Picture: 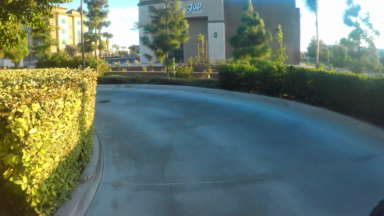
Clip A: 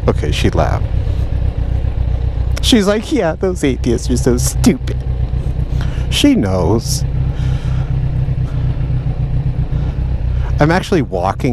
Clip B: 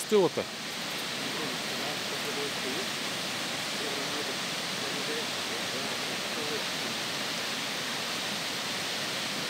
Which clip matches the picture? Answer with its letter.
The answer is A